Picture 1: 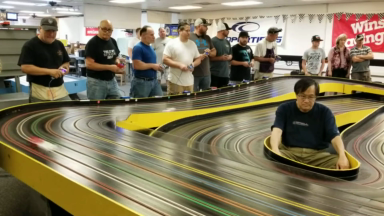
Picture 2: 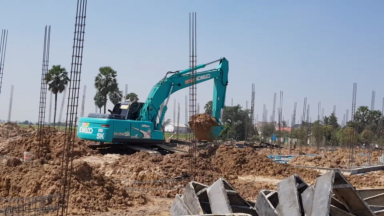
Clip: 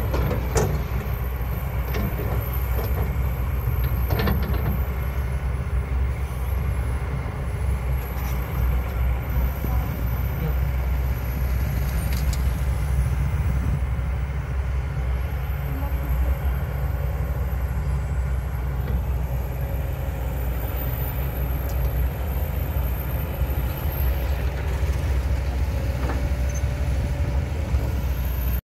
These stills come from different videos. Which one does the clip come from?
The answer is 2